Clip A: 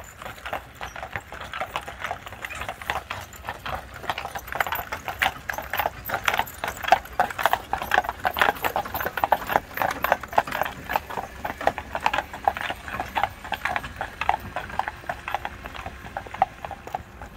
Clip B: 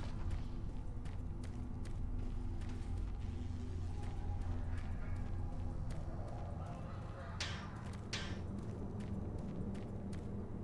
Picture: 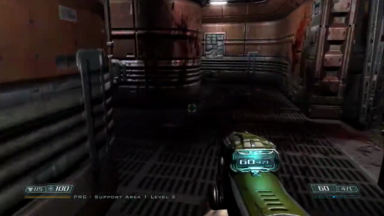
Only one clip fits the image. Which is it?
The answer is B